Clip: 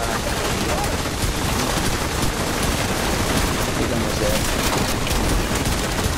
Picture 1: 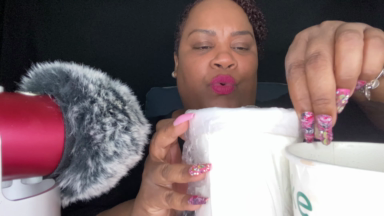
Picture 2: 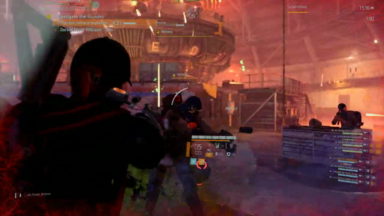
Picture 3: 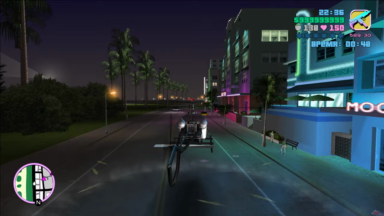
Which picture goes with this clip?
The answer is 2